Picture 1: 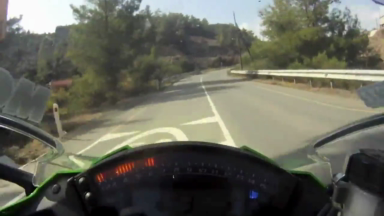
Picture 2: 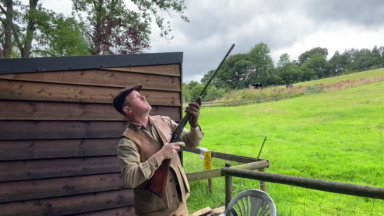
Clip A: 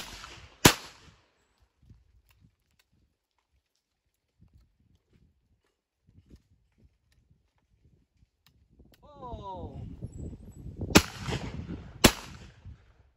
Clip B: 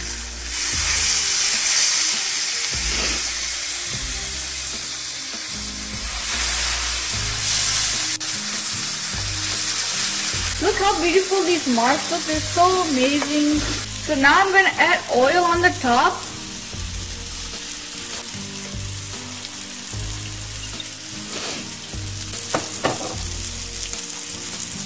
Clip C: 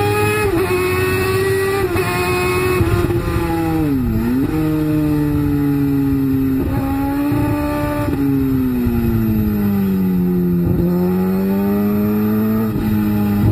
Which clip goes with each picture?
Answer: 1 C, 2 A